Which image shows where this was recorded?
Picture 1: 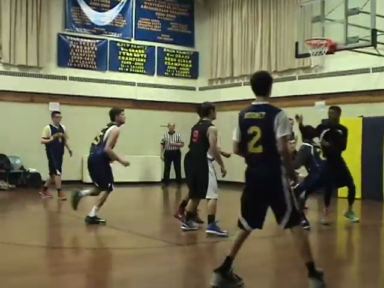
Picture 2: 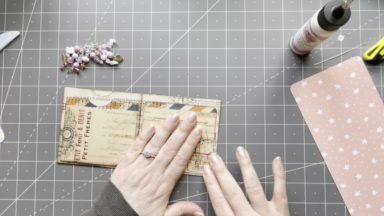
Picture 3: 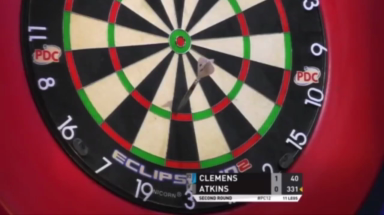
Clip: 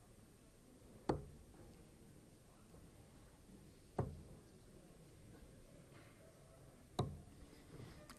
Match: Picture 3